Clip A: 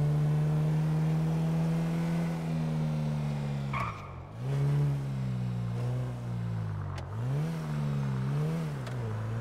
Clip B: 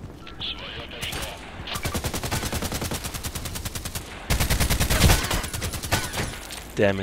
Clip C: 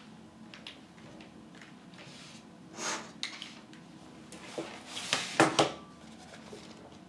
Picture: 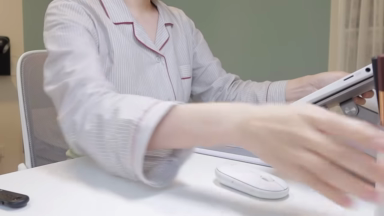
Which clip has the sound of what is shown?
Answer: C